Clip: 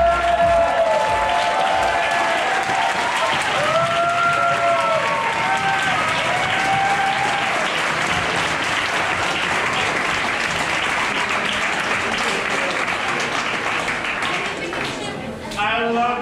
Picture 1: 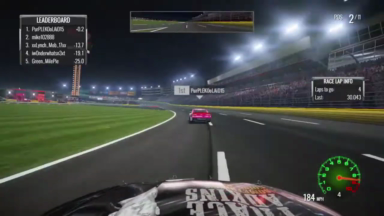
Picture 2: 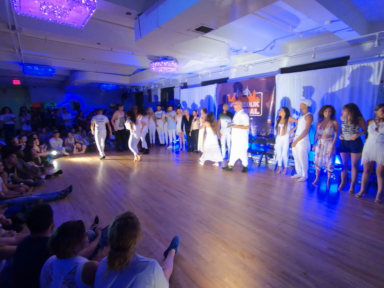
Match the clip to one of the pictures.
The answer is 2